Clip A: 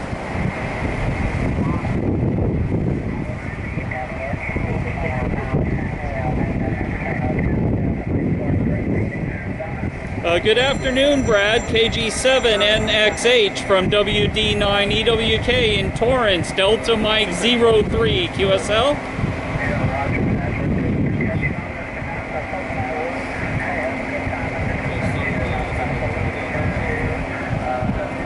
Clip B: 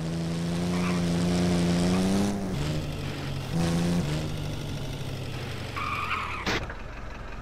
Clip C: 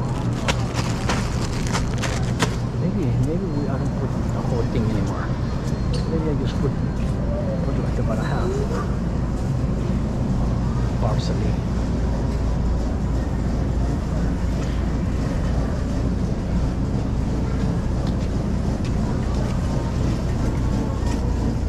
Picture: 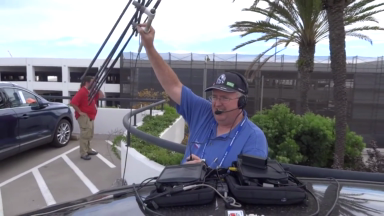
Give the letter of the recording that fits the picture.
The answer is A